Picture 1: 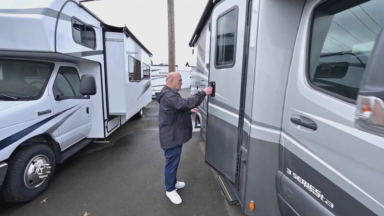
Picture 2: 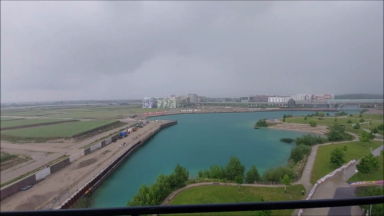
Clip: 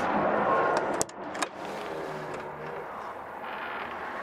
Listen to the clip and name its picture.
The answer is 1